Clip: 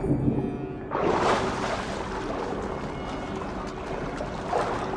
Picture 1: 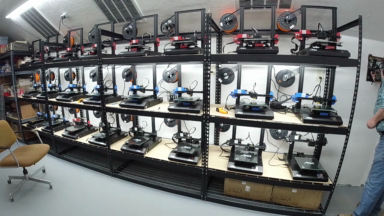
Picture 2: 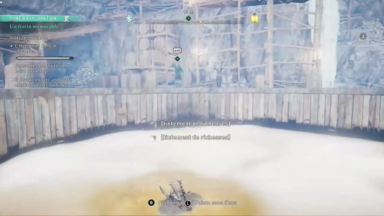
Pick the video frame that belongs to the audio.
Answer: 2